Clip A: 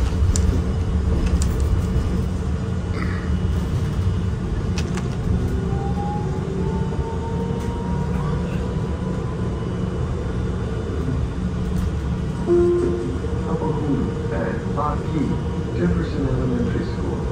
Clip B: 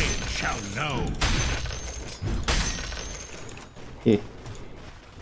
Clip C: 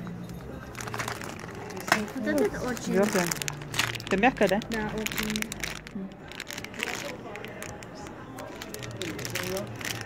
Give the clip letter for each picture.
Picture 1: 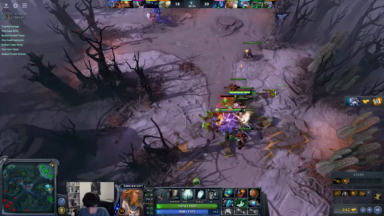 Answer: B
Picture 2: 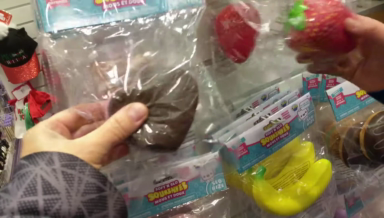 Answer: C